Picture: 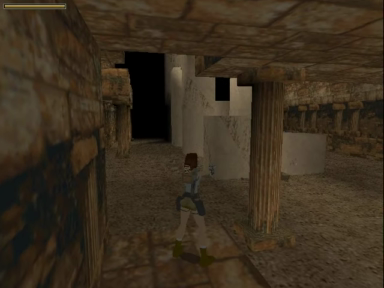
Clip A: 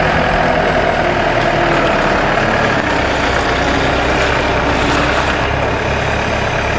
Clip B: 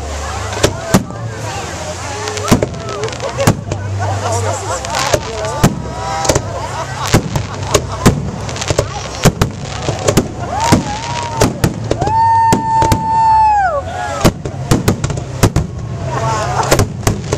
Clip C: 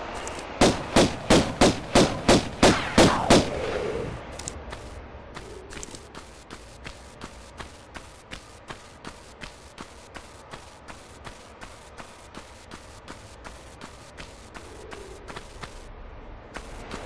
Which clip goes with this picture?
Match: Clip C